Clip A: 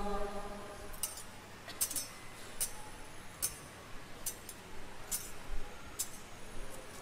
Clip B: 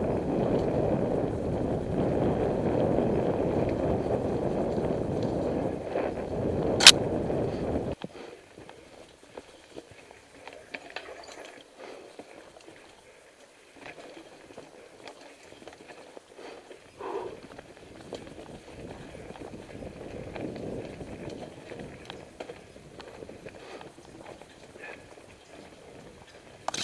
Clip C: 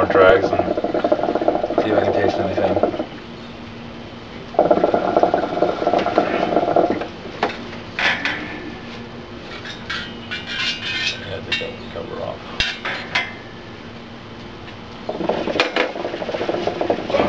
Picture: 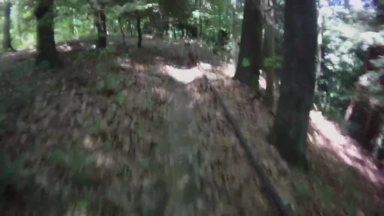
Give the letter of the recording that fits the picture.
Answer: B